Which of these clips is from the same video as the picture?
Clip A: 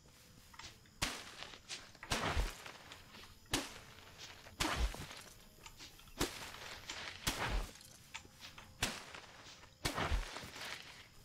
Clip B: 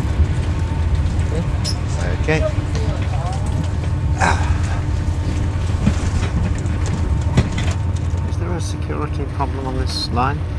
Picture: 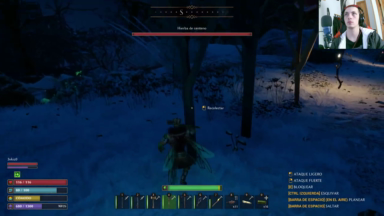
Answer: A